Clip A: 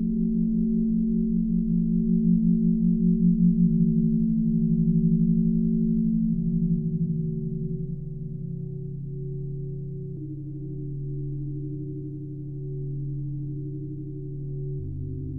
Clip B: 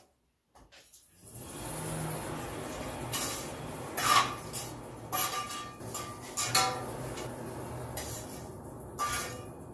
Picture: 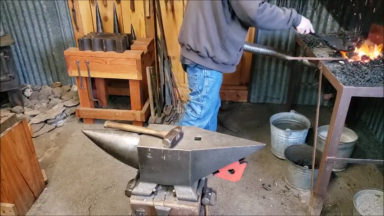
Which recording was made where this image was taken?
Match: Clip B